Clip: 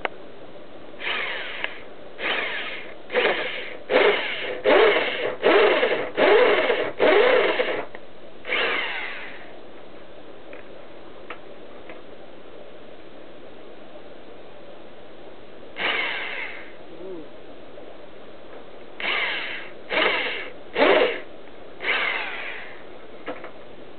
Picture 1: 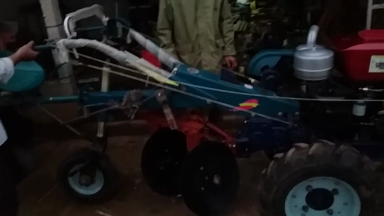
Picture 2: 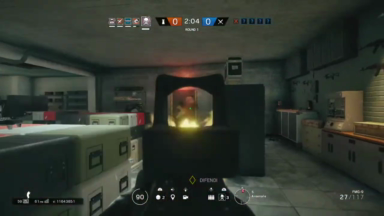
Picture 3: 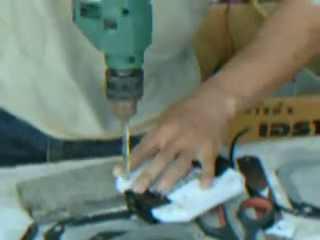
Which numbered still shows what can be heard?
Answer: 3